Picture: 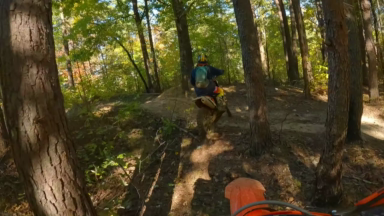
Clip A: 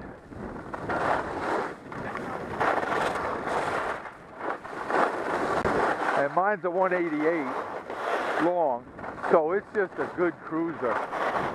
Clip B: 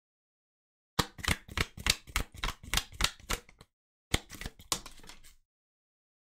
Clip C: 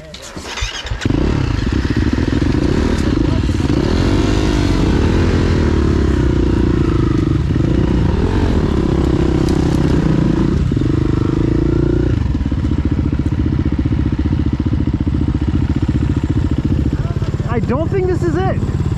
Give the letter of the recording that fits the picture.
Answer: C